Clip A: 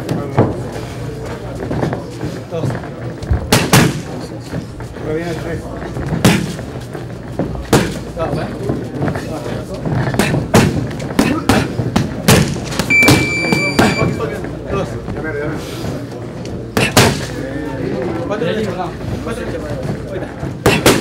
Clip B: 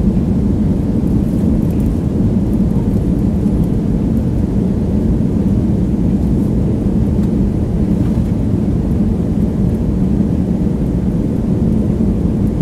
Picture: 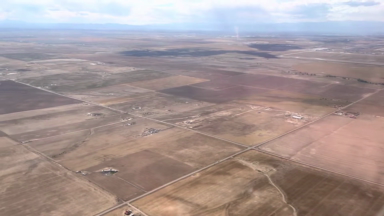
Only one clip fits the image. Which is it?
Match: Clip B